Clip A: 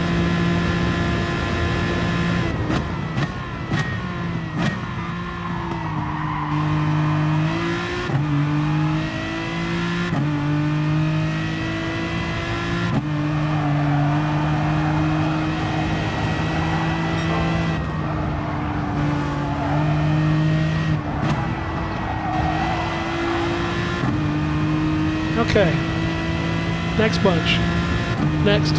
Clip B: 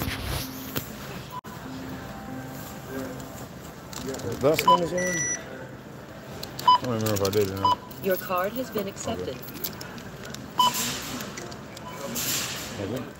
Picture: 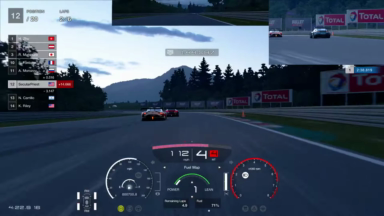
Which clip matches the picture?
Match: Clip A